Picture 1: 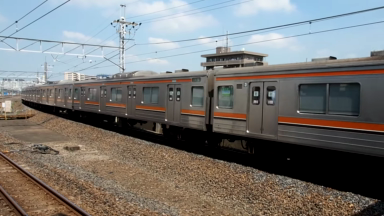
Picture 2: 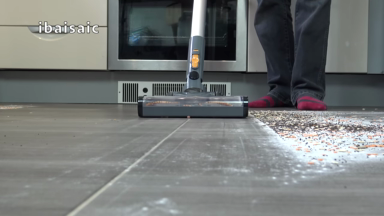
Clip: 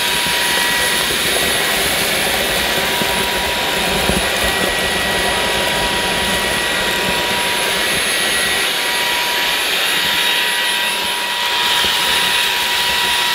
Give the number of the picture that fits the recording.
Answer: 2